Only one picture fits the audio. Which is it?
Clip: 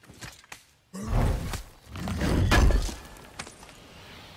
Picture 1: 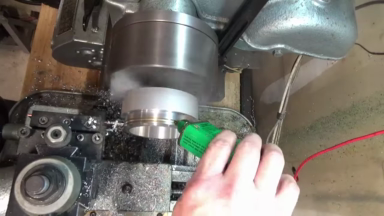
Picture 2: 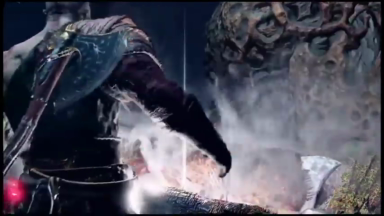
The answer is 2